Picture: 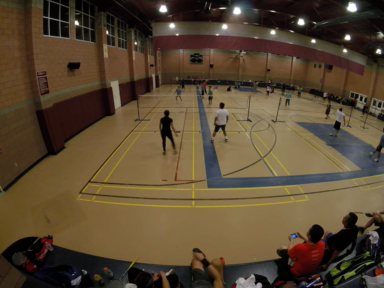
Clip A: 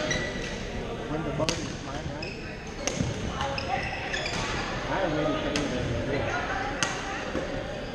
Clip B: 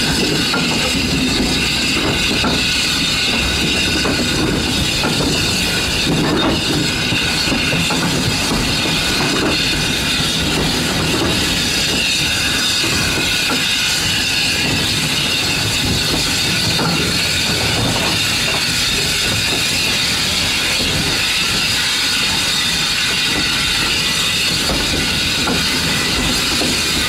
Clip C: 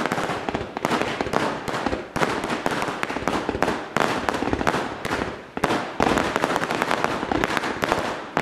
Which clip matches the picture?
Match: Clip A